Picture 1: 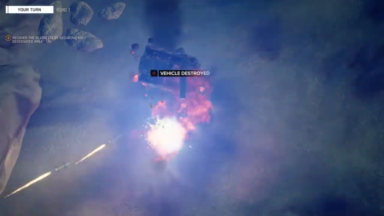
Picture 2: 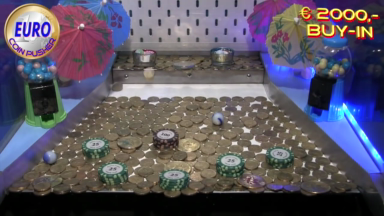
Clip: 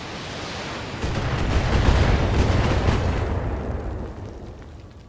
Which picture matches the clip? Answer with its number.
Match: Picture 1